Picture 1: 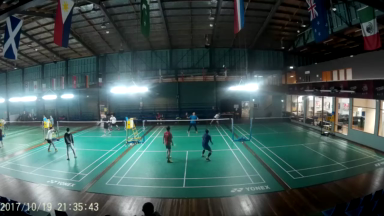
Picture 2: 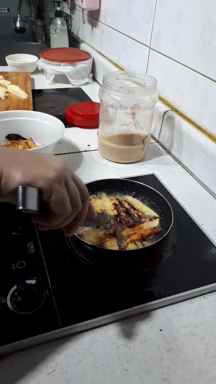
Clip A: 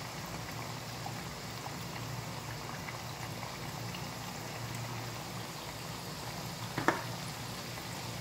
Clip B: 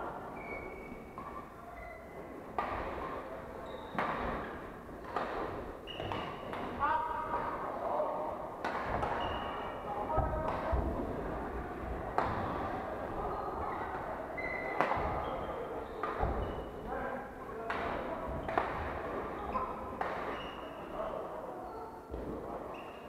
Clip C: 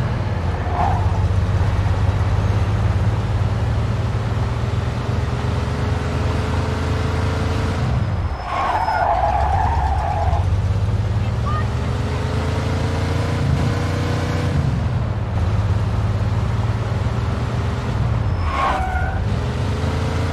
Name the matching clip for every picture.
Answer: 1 B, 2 A